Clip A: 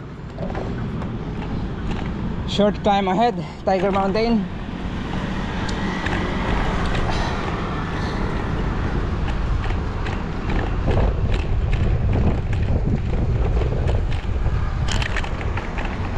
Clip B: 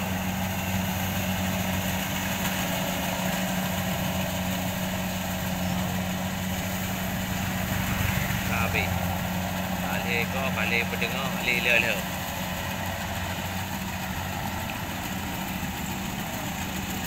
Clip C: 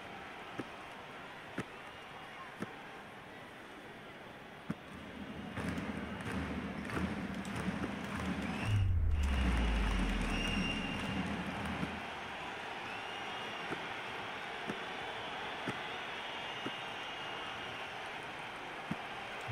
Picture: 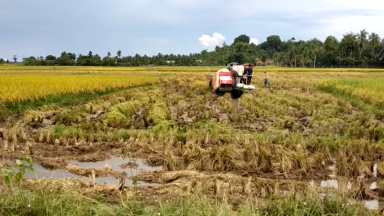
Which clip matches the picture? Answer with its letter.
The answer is B